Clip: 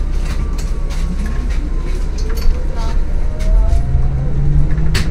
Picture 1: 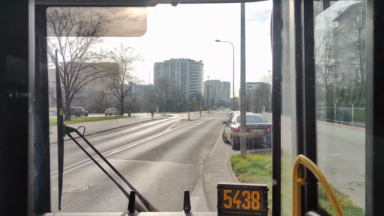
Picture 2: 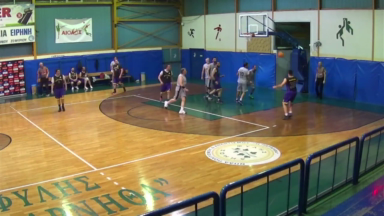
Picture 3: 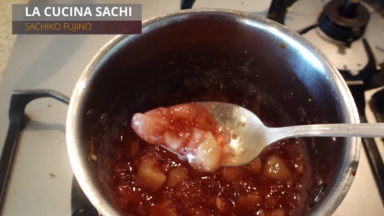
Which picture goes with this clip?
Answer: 1